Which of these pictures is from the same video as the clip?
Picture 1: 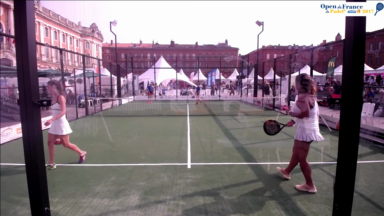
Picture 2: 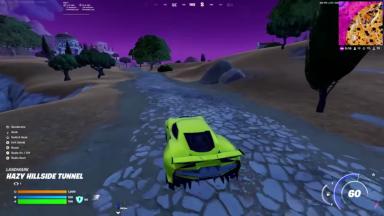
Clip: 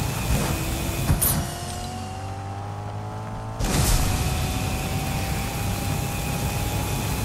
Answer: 2